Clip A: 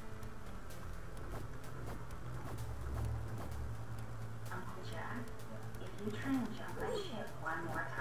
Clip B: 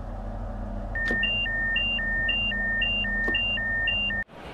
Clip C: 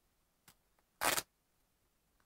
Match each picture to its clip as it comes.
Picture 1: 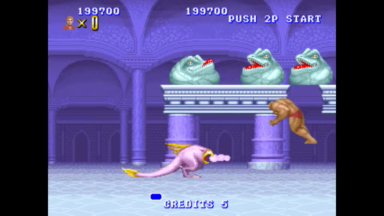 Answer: A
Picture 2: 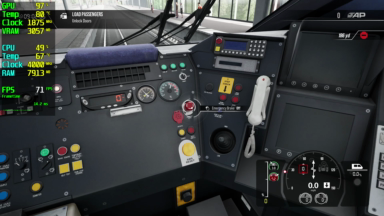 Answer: B